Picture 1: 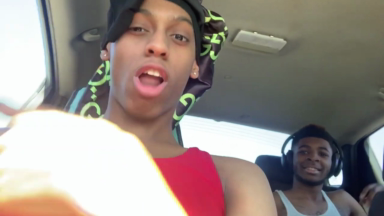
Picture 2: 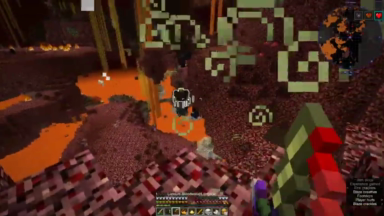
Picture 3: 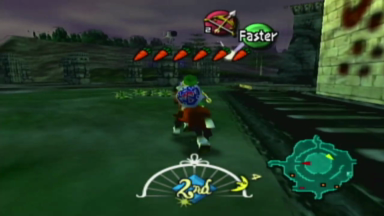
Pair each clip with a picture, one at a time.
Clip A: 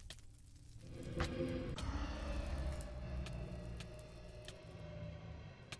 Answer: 2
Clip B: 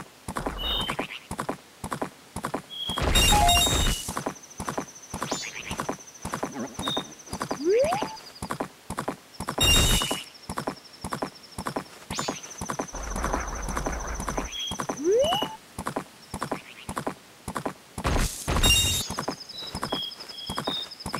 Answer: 3